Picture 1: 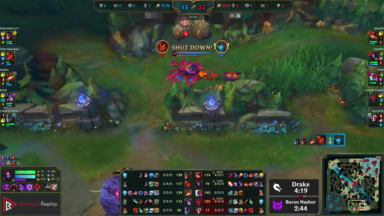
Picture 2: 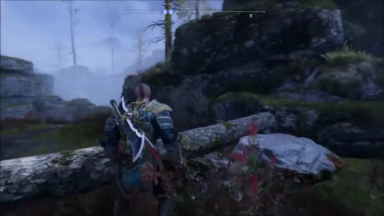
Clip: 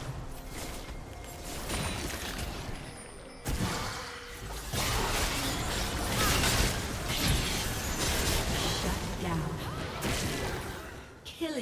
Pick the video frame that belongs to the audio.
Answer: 1